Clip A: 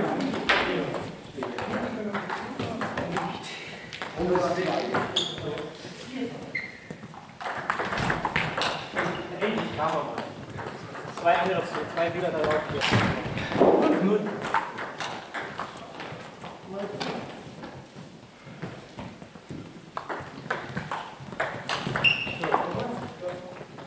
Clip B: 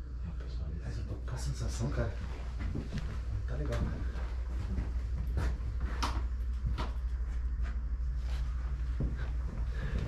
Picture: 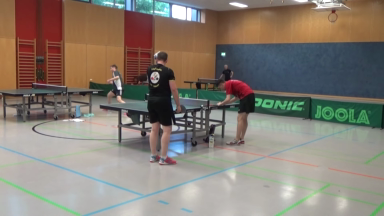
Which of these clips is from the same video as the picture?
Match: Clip A